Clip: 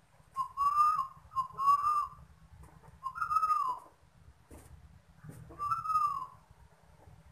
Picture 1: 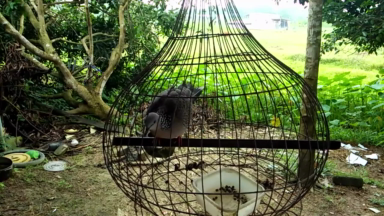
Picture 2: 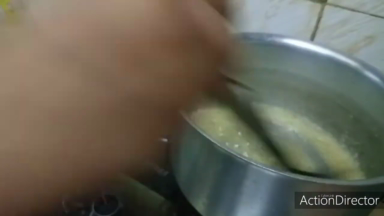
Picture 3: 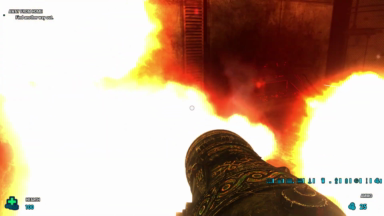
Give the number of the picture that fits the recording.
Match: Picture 1